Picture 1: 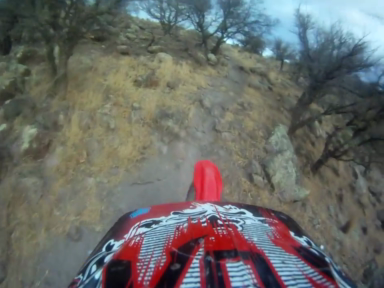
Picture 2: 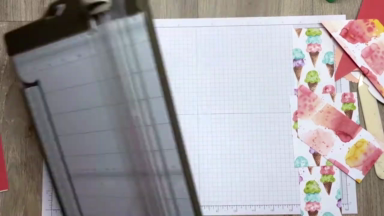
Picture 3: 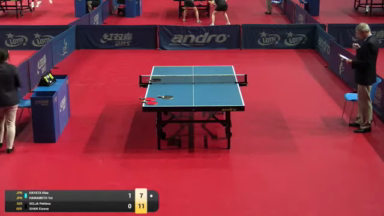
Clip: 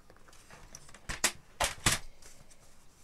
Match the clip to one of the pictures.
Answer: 2